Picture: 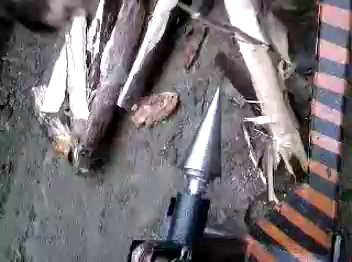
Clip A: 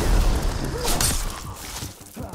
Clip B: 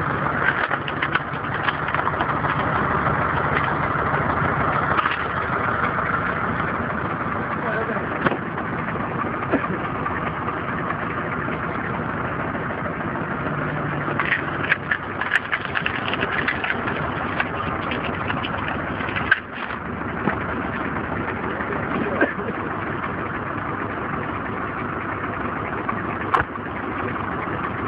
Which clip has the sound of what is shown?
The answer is B